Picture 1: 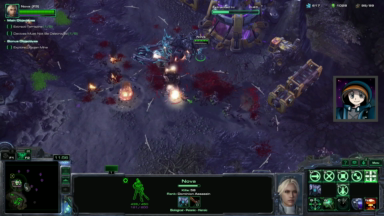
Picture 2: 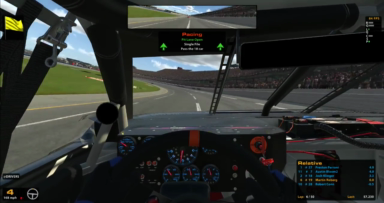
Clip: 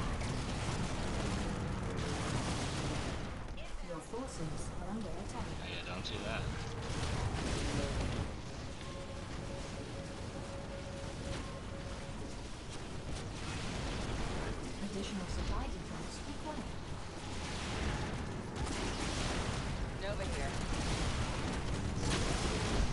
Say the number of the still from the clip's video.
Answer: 1